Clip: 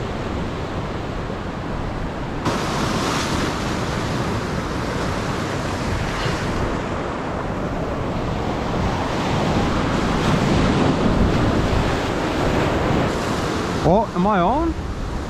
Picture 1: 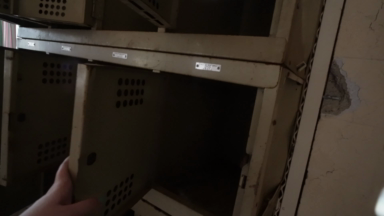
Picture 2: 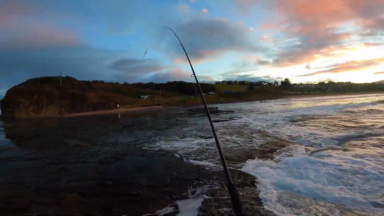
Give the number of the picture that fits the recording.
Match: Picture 2